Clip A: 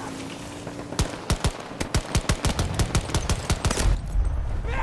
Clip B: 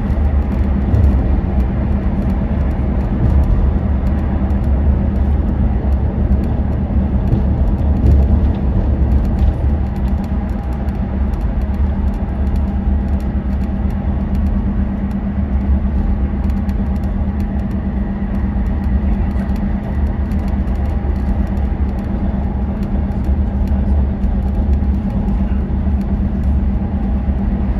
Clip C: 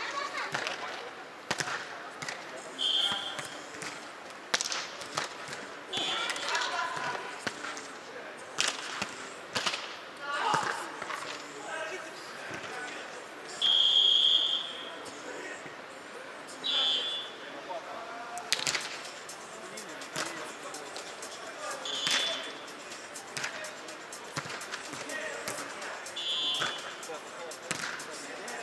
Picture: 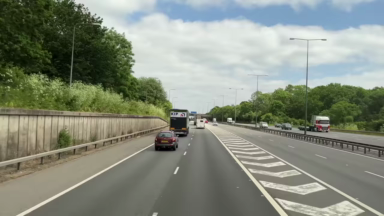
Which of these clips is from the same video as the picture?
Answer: B